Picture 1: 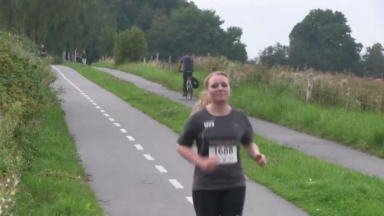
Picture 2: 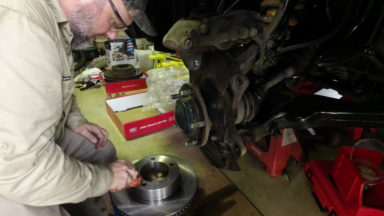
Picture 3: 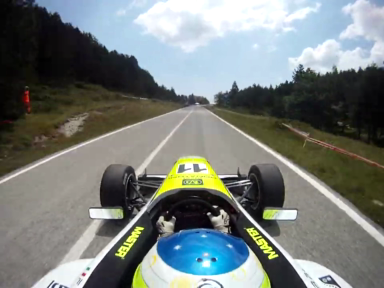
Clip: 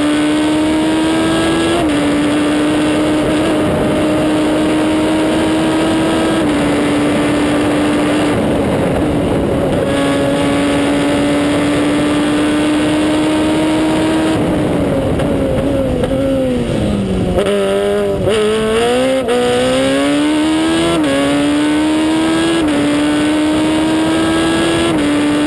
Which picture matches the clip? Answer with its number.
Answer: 3